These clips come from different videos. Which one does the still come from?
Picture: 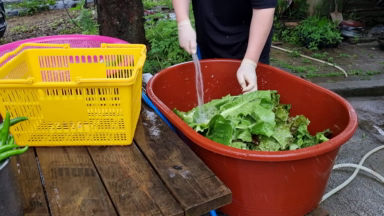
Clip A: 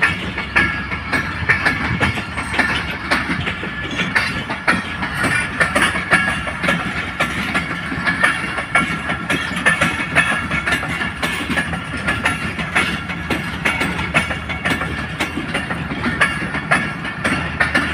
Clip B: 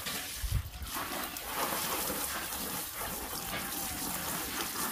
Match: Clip B